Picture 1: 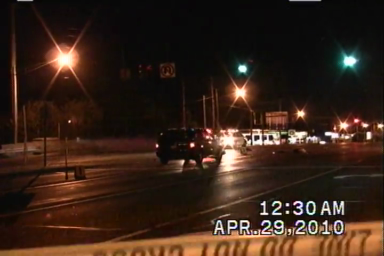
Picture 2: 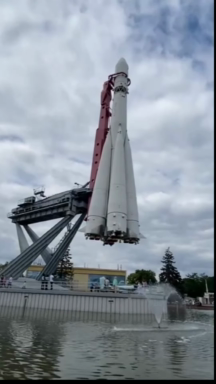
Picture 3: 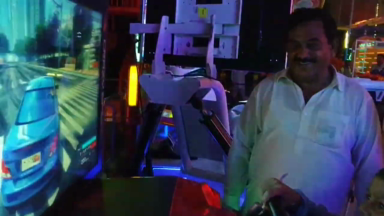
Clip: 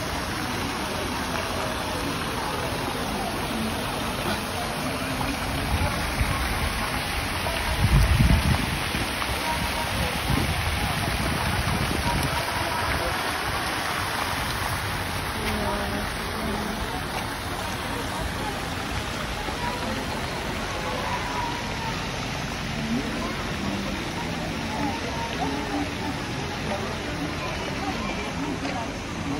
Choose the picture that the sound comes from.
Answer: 2